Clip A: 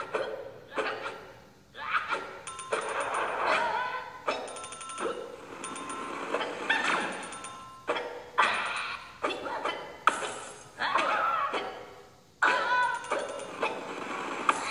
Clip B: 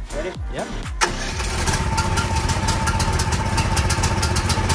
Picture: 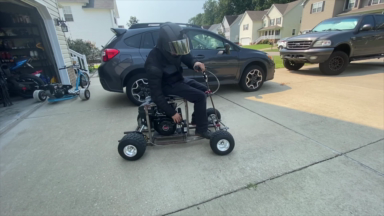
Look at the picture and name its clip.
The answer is B